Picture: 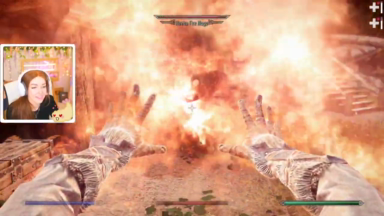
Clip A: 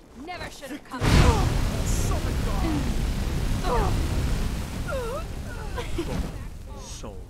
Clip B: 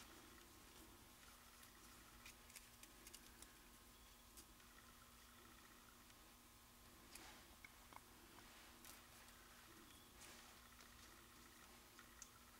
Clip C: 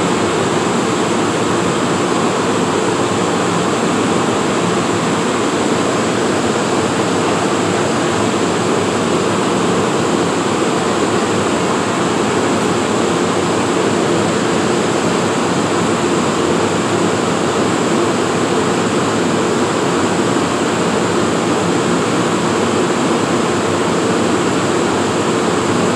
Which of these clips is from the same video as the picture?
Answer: A